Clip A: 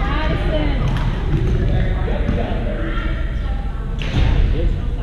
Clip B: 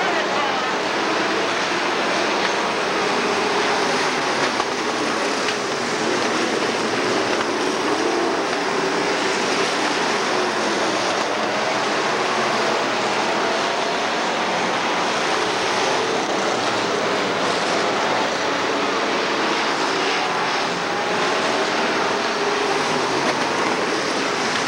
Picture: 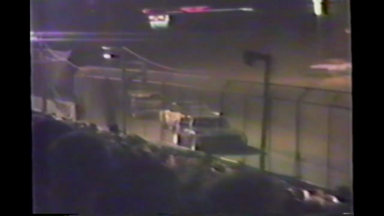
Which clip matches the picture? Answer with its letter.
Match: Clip B